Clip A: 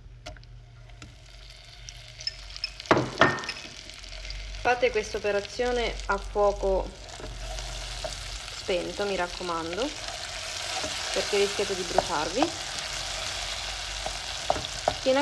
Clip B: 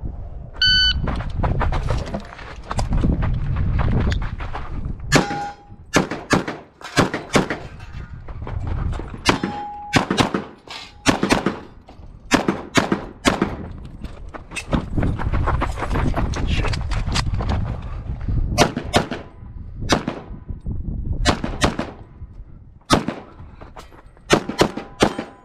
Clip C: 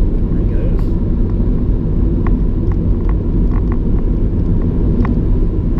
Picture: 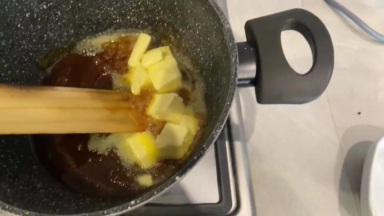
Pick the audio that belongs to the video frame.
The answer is A